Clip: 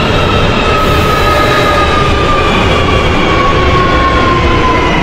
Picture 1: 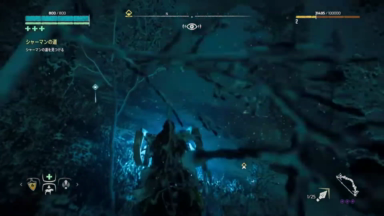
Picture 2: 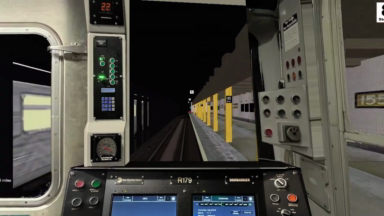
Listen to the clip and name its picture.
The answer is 2